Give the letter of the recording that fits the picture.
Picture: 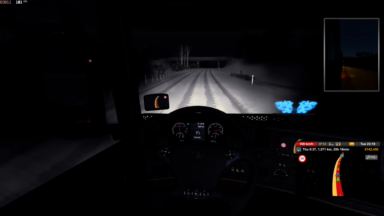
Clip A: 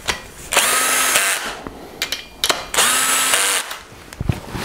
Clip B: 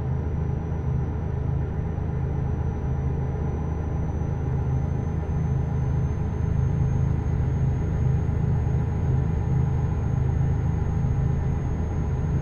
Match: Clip B